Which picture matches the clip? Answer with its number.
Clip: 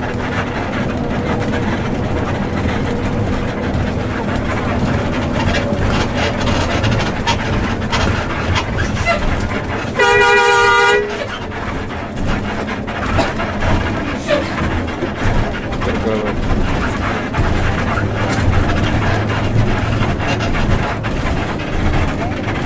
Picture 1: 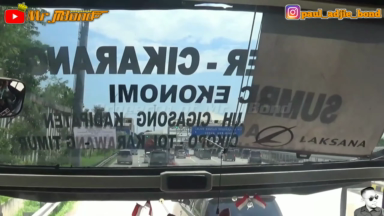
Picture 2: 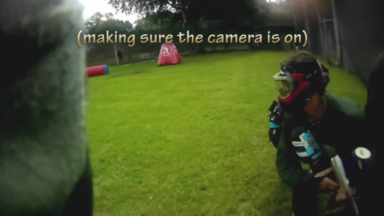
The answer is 1